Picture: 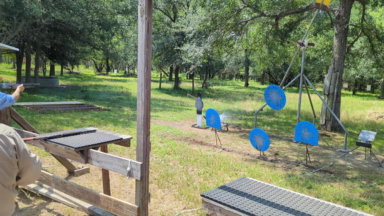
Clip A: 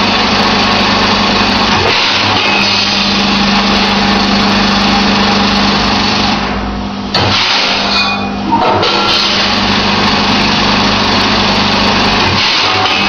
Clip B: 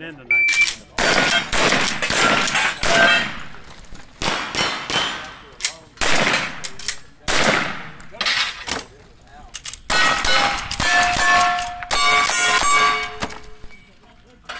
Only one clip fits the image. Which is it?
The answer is B